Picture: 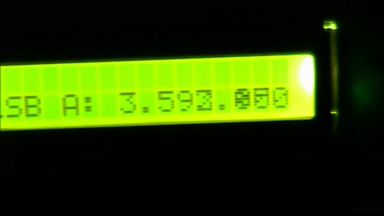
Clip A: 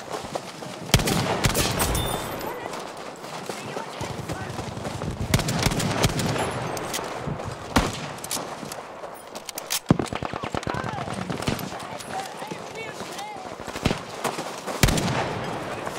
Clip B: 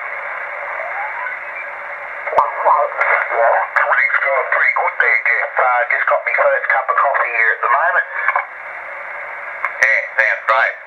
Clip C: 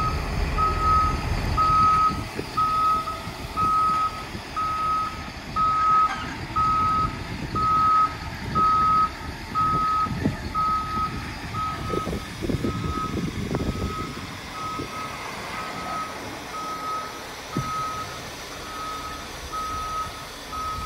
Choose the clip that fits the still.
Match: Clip B